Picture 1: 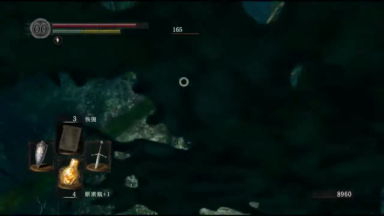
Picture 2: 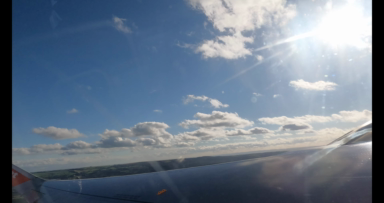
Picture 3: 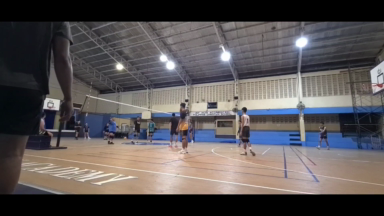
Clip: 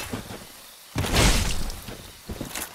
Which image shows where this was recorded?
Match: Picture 1